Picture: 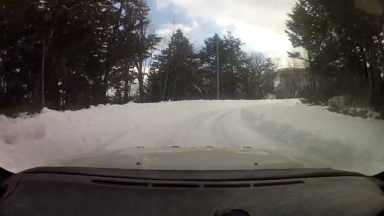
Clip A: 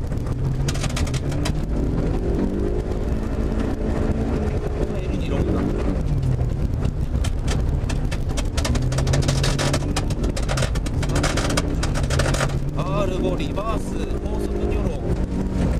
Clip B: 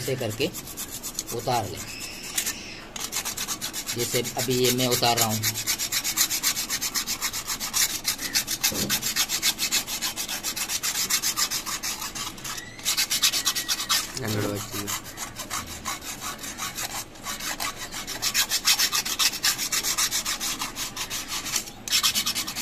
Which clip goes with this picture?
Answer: A